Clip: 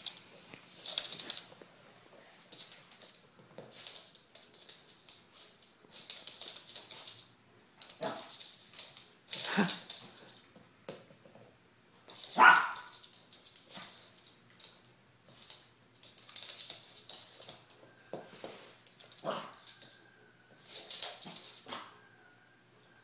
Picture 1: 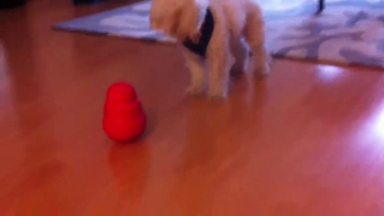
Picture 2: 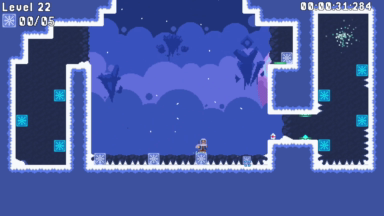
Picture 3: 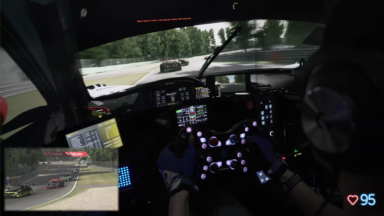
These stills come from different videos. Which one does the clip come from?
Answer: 1